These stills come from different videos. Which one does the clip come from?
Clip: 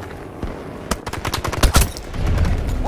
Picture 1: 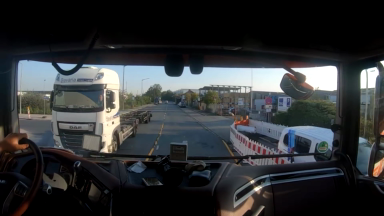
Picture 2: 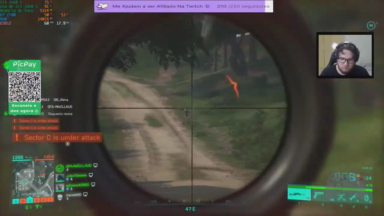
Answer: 2